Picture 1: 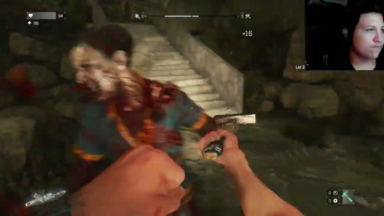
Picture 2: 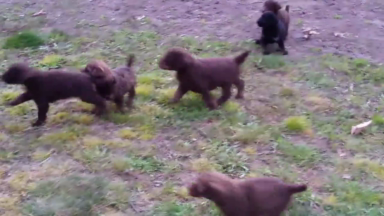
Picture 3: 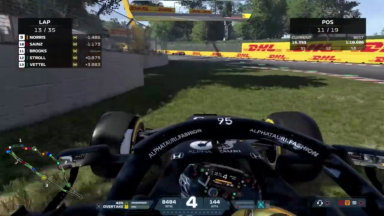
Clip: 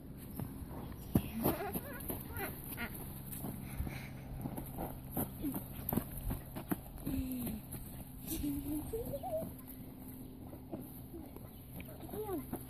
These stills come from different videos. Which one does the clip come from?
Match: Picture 2